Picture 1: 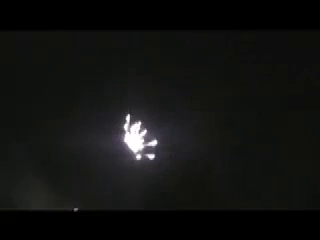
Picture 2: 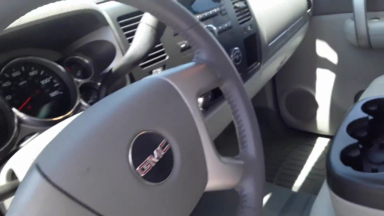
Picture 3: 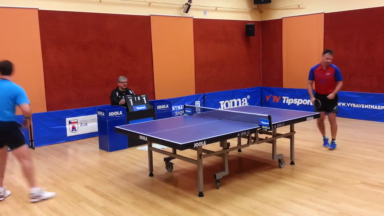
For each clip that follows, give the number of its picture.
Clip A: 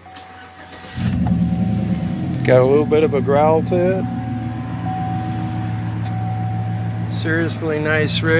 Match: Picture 2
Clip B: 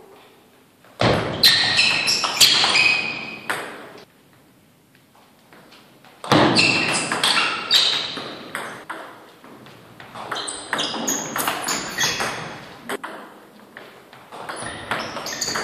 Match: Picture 3